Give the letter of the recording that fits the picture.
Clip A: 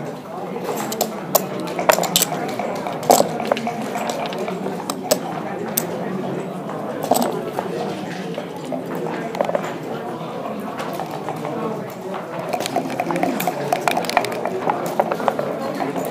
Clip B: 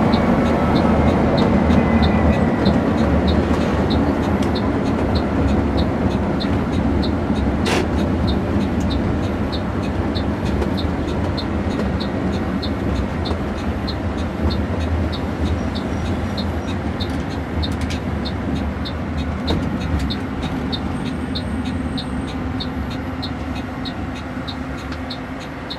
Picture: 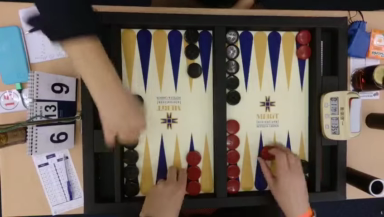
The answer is A